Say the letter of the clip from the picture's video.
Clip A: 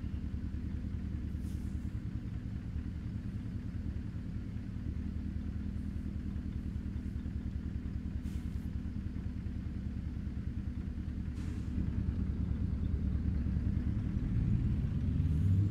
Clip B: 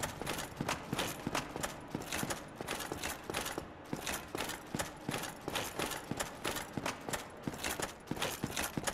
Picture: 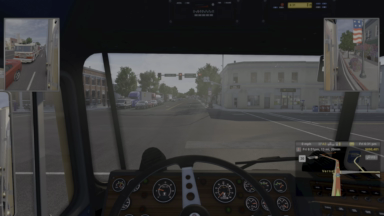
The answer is A